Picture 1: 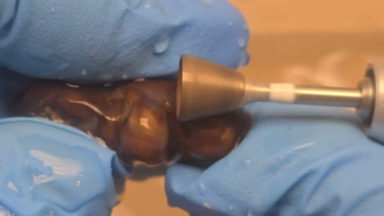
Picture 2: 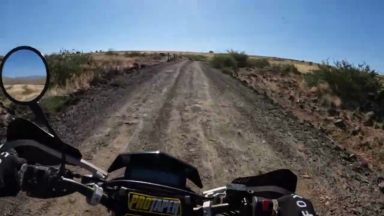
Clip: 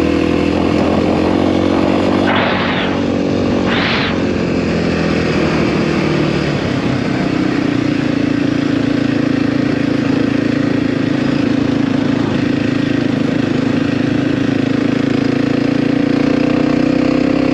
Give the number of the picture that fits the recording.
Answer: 2